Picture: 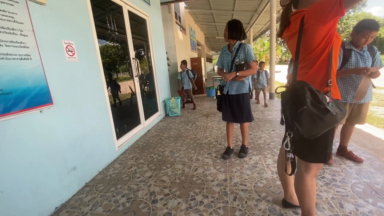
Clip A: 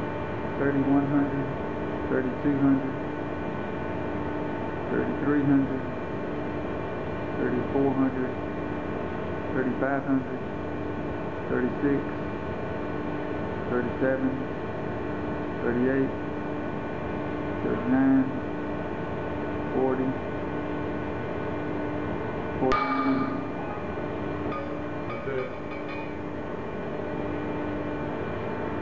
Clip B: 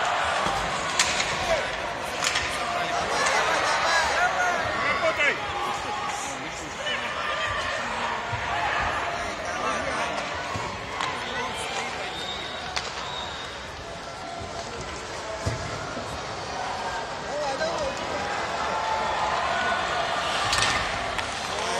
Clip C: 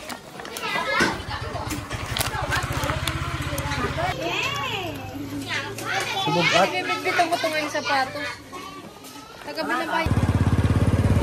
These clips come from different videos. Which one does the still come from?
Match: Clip C